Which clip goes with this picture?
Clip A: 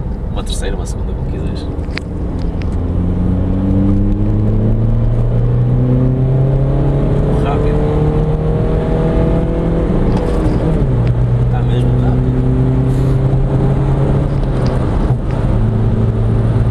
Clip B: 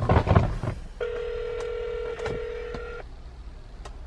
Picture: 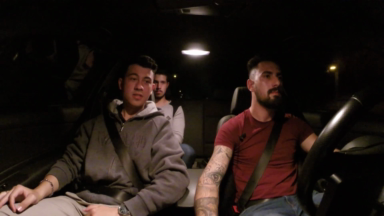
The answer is A